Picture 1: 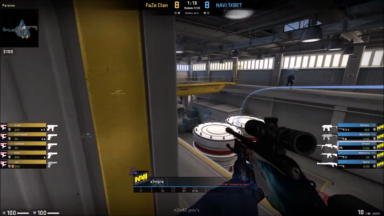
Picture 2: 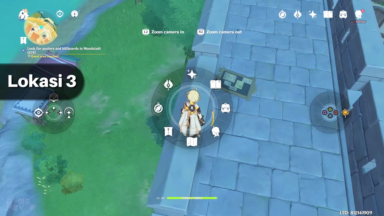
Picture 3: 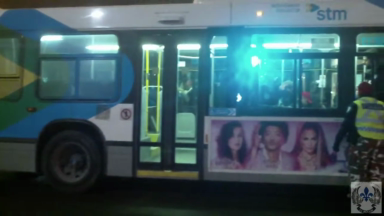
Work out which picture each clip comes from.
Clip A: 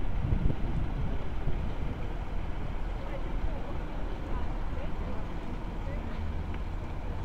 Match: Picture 3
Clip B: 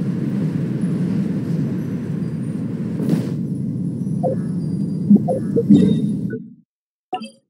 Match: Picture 2